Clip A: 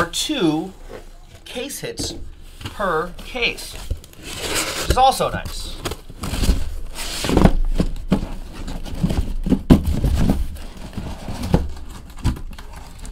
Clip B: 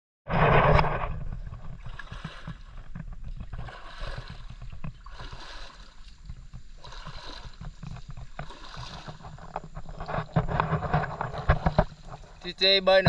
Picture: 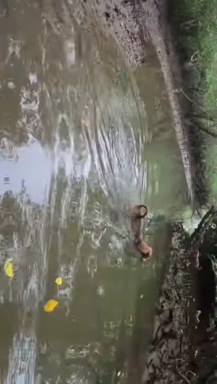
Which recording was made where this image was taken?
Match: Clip B